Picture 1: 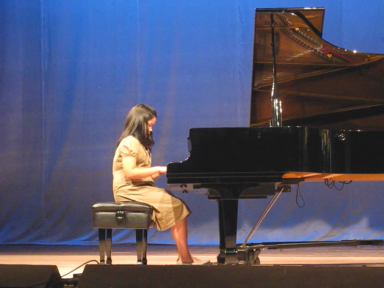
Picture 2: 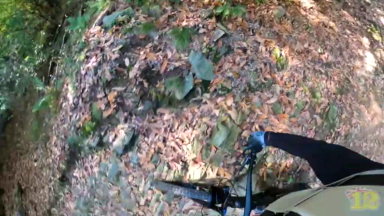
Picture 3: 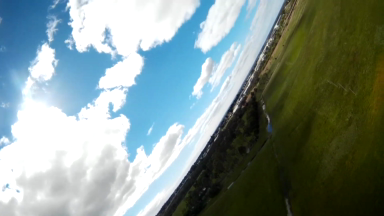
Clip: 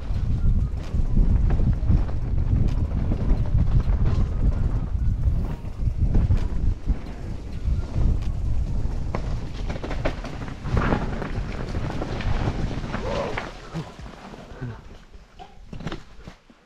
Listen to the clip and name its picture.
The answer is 2